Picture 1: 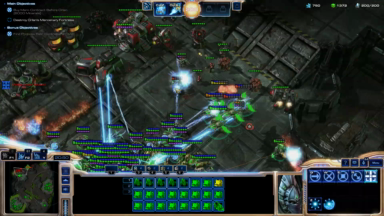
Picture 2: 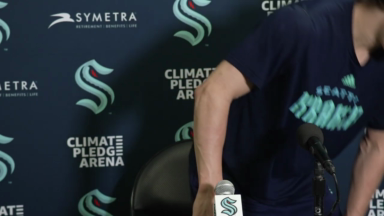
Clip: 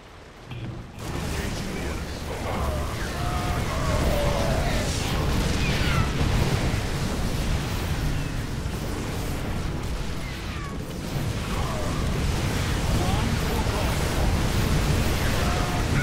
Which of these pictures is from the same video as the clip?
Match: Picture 1